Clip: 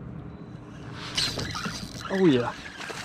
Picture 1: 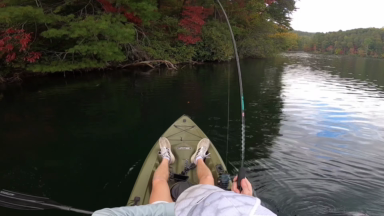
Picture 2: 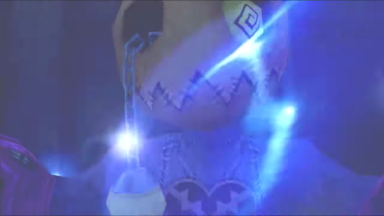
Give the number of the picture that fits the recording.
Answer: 1